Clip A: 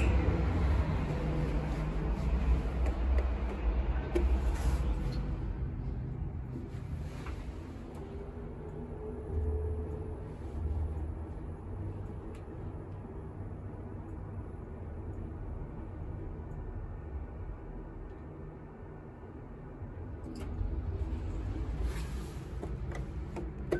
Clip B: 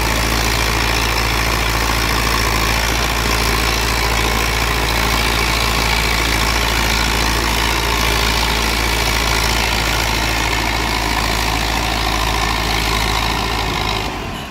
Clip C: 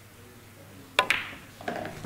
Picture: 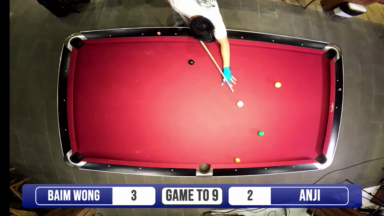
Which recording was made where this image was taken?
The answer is C